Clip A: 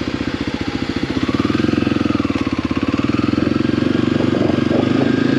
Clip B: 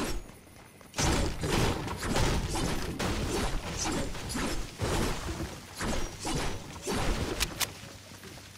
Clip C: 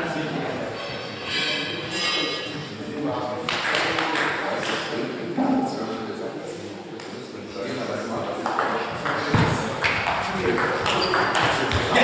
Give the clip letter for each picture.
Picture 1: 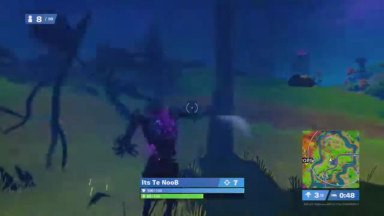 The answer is B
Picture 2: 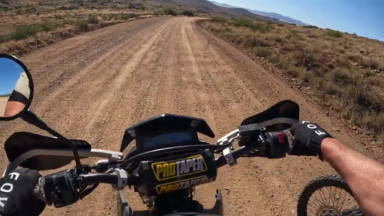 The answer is A